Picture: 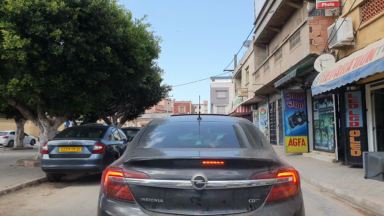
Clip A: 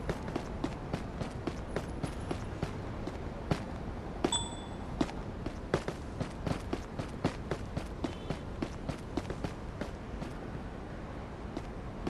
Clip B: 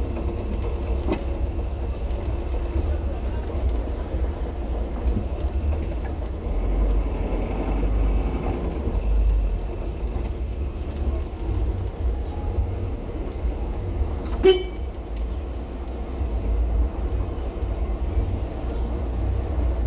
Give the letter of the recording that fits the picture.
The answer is B